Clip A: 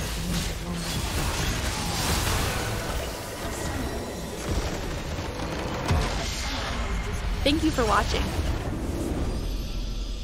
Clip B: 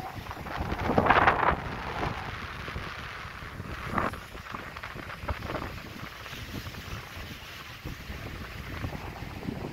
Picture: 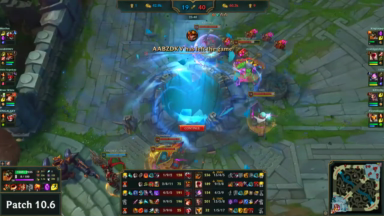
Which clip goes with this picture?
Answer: A